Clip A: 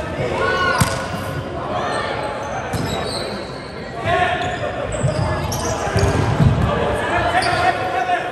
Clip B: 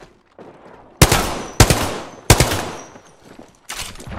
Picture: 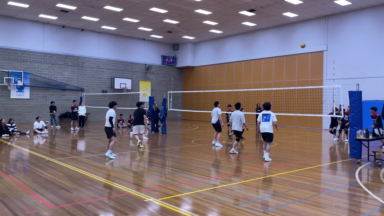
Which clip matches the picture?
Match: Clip A